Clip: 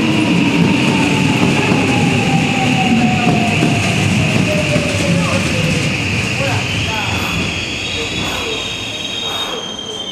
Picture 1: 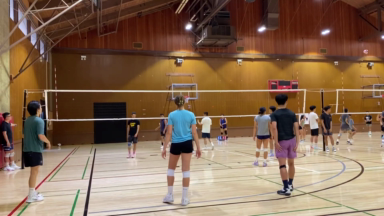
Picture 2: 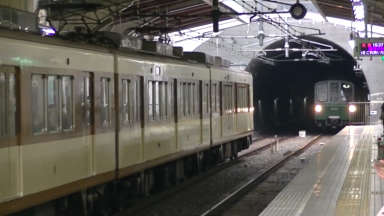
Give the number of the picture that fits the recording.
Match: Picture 2